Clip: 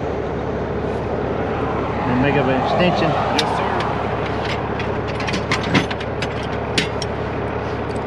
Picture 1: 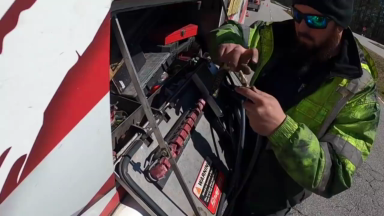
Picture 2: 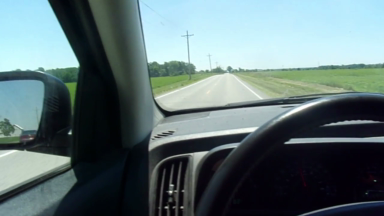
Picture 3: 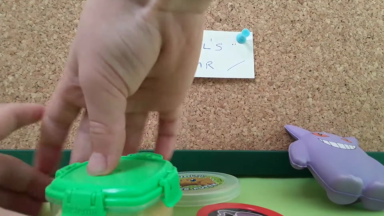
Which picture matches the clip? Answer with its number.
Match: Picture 1